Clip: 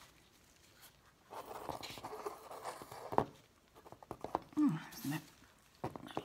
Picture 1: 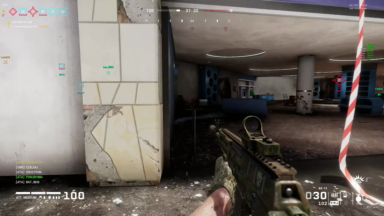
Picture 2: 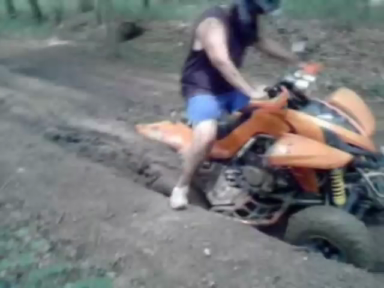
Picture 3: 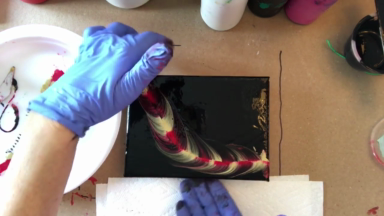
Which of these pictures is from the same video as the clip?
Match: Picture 3